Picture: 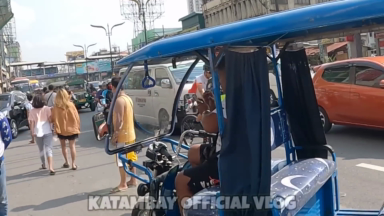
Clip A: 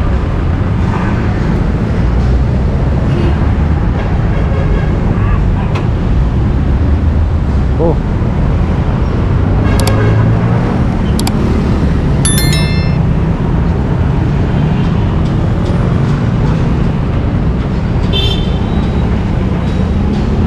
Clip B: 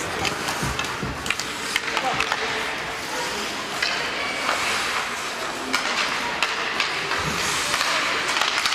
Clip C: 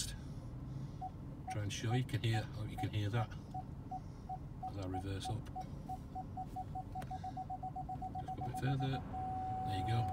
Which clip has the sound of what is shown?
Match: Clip A